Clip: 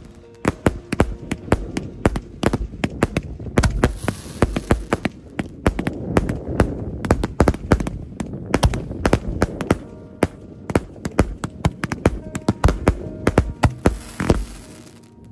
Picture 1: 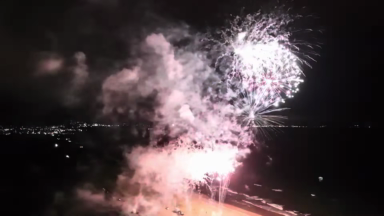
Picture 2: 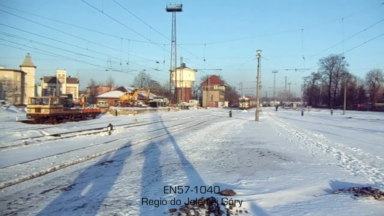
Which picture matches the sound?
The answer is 1